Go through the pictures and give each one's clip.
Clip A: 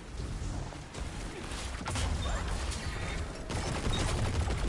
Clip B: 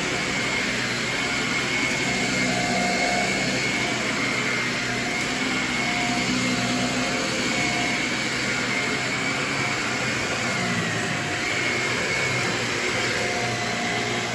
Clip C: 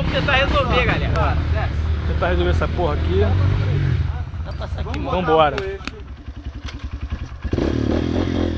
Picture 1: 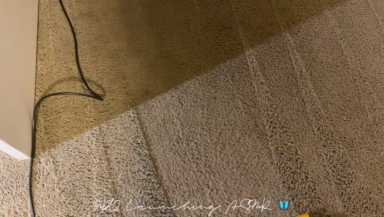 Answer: B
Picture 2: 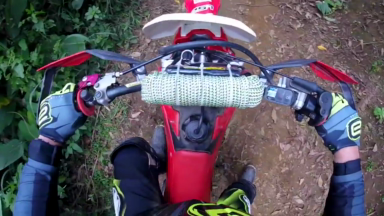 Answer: C